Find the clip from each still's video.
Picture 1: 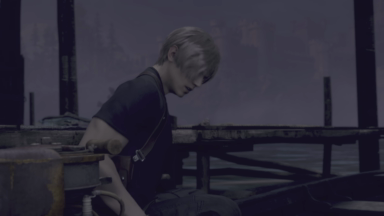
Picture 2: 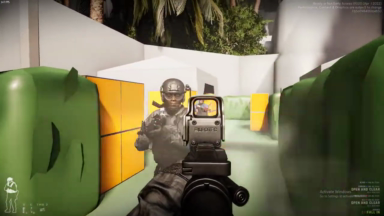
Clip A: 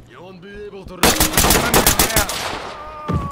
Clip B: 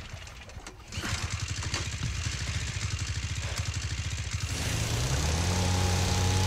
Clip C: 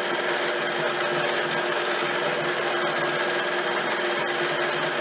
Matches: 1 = B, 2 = A